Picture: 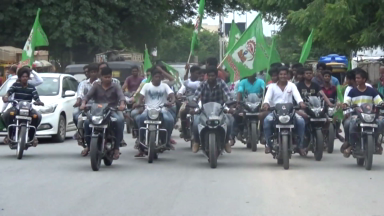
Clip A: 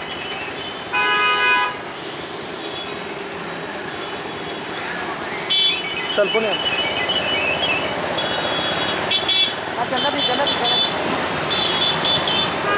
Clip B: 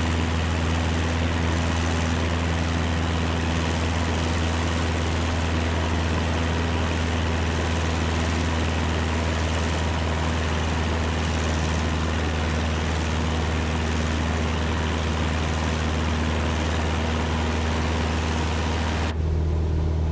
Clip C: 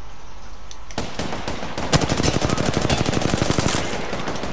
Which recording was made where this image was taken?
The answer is A